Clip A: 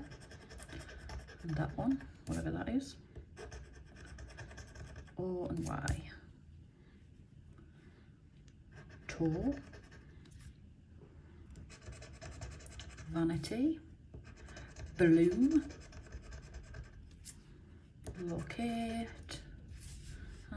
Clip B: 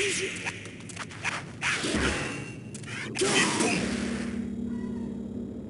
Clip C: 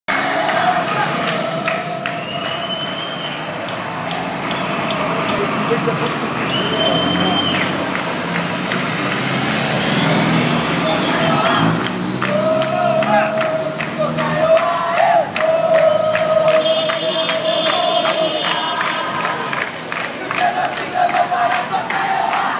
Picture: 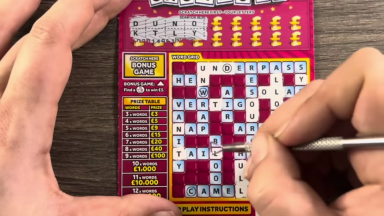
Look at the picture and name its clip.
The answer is A